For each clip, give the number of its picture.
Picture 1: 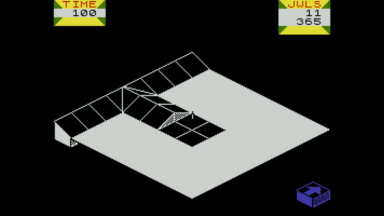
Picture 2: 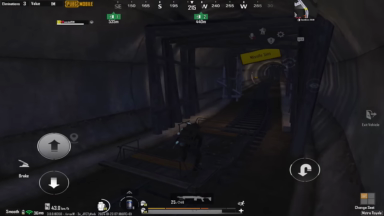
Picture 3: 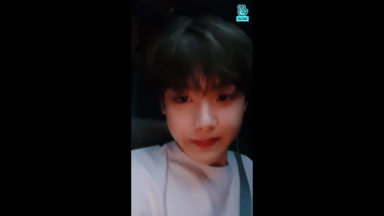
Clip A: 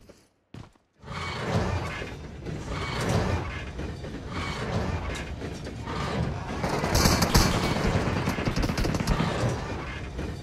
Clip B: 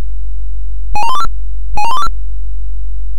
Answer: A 2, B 1